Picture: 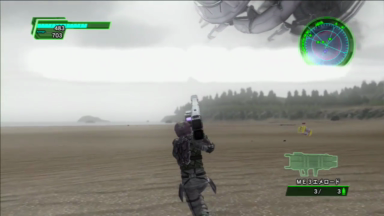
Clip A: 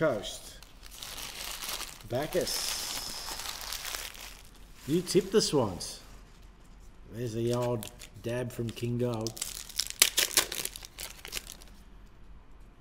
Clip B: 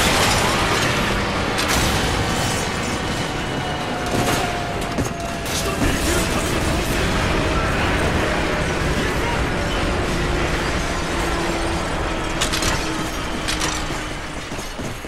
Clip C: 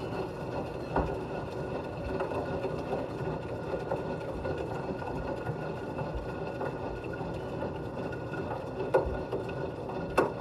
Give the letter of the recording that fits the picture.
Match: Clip B